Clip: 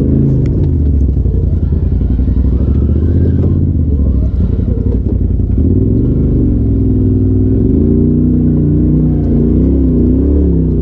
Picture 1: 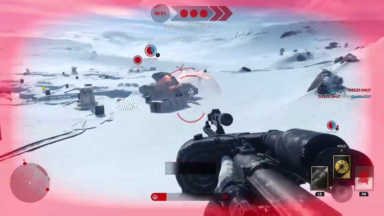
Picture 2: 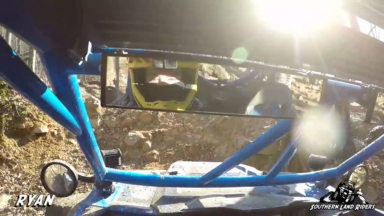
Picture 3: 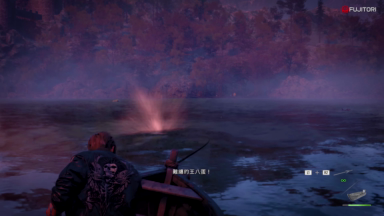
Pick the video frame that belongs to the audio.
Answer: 2